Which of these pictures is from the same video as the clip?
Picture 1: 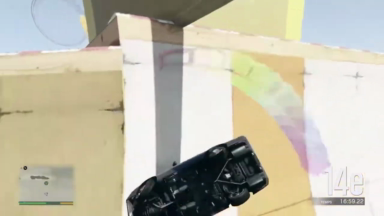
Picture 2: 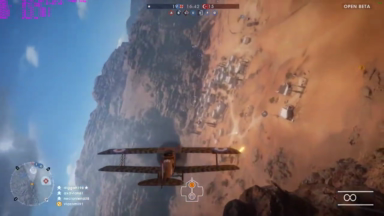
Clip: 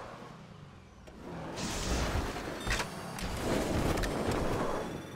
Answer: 1